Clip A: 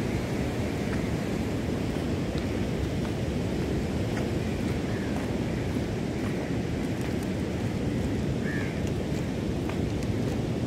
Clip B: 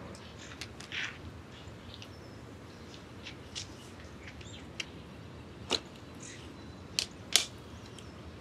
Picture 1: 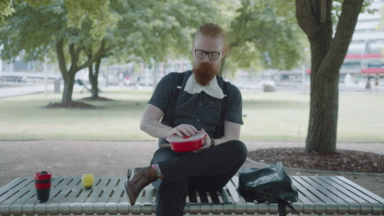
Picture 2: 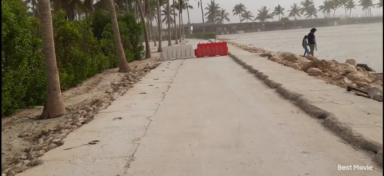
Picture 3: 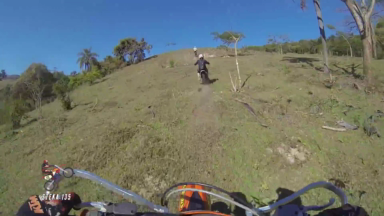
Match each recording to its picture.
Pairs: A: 2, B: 1